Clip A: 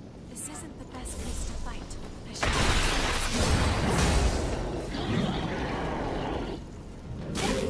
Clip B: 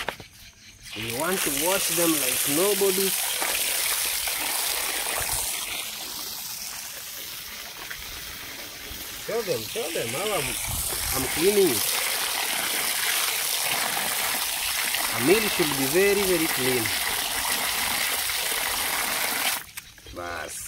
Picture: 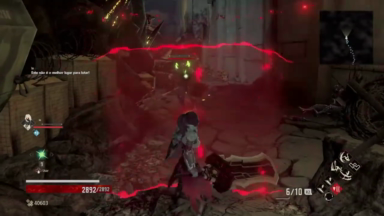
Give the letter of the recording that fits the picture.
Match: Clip A